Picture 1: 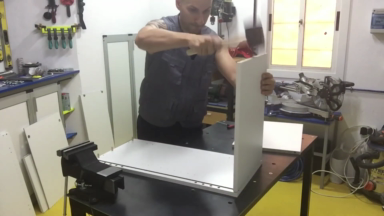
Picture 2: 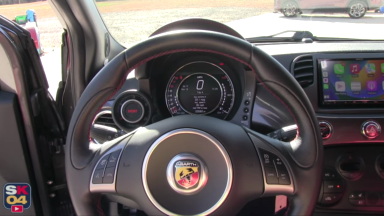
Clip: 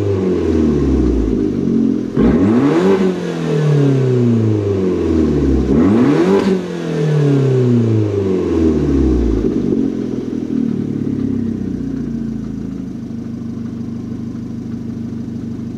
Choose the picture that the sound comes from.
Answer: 2